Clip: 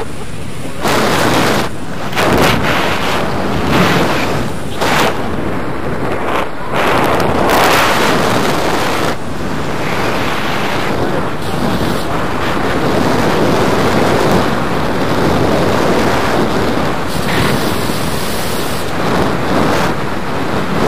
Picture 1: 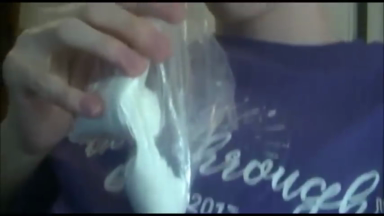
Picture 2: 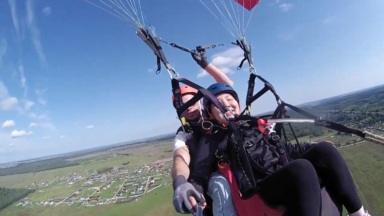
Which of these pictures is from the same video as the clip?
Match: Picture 2